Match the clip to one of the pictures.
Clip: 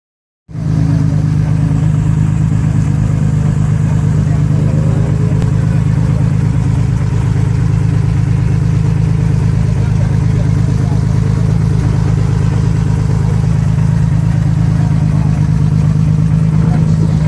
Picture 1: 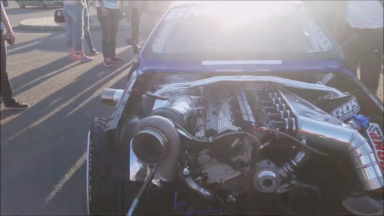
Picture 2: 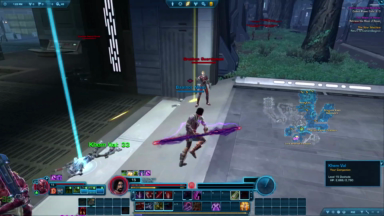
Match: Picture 1